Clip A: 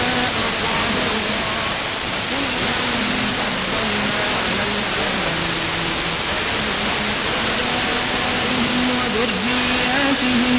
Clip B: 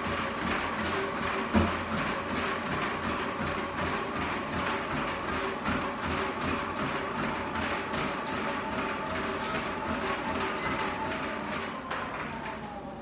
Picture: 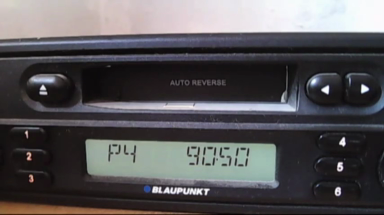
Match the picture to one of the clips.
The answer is A